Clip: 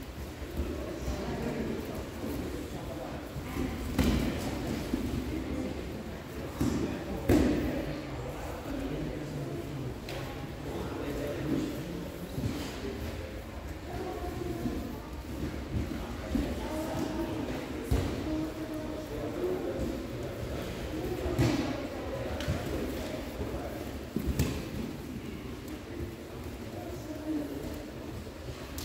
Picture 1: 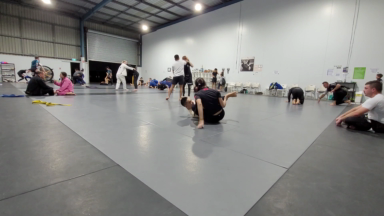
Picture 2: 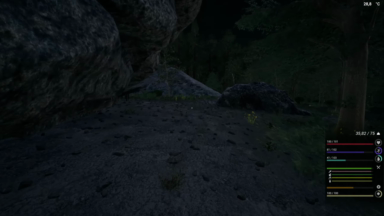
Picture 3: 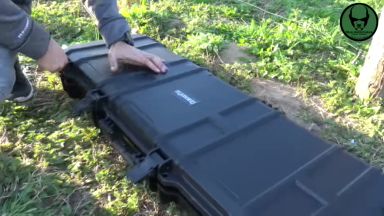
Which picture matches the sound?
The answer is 1